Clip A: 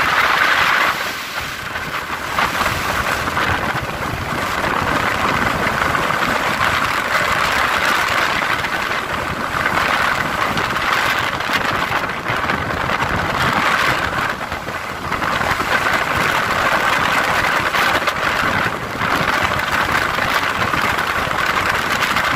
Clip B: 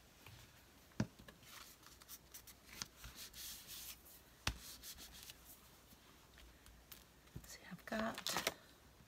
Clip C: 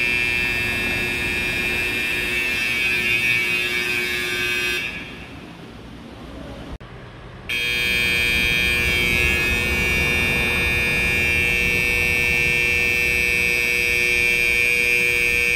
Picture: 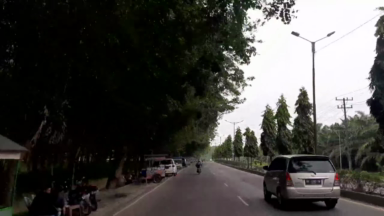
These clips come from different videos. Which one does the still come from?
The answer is A